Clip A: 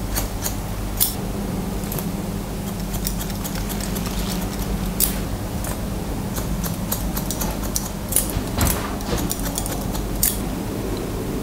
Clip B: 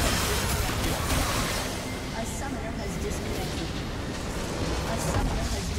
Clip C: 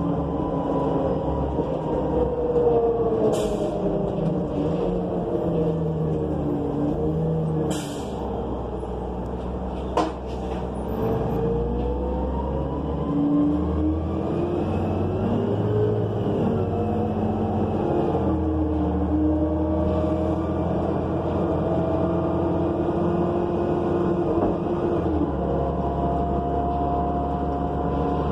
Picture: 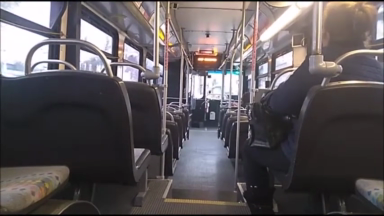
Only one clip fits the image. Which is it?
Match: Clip C